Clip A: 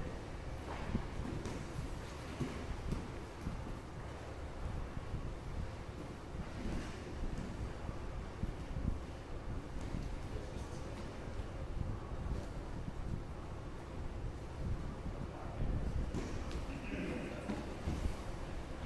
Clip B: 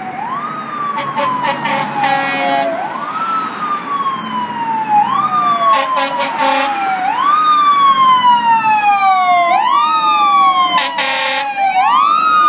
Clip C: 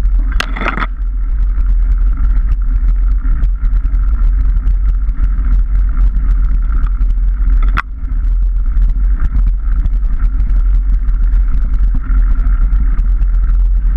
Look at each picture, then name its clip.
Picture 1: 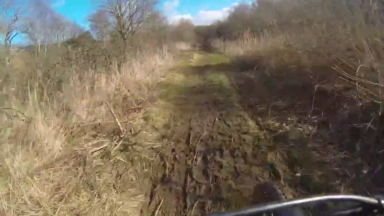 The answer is C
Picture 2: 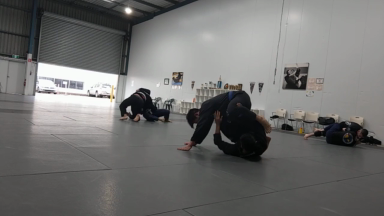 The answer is A